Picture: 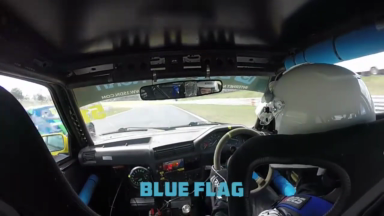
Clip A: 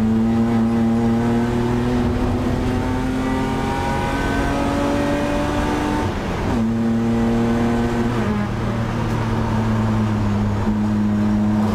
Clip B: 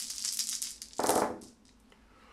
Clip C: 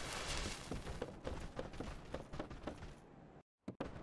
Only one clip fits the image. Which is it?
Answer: A